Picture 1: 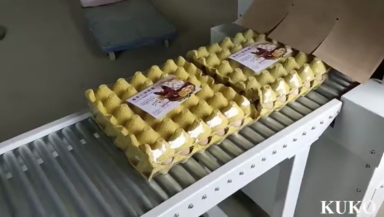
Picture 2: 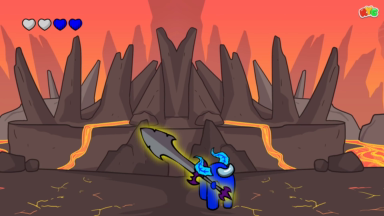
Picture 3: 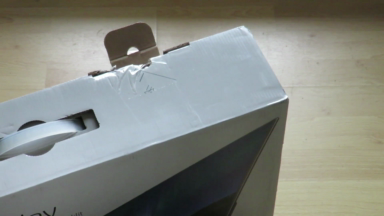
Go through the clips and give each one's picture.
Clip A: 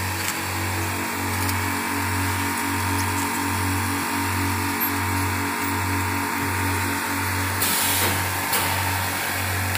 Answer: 1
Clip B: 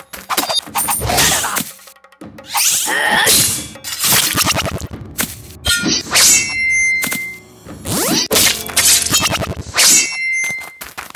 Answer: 2